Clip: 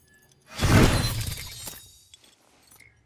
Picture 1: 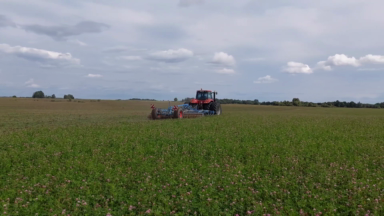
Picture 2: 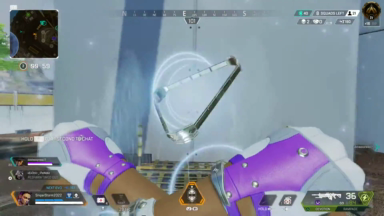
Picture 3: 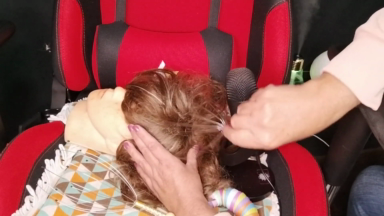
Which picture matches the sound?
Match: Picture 2